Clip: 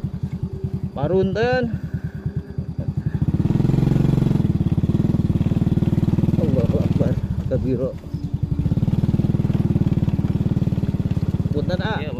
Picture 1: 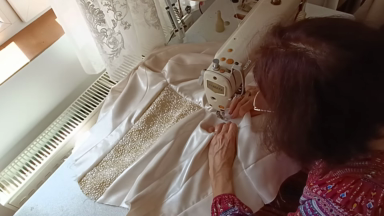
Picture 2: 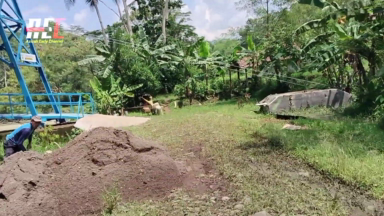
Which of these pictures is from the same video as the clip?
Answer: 2